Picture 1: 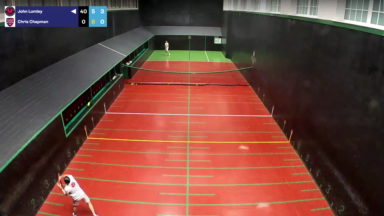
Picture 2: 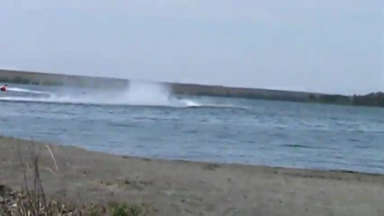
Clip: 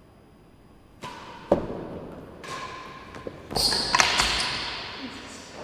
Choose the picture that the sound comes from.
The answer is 1